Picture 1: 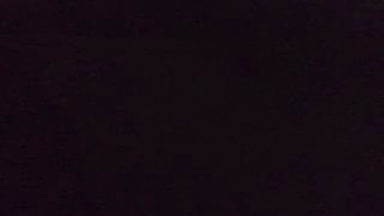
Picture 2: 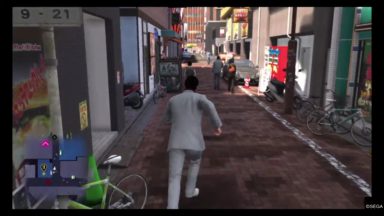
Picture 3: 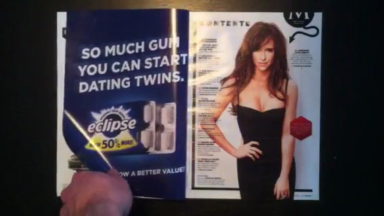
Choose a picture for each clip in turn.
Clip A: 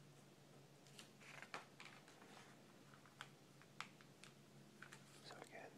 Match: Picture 3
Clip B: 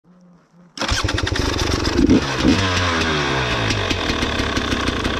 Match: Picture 1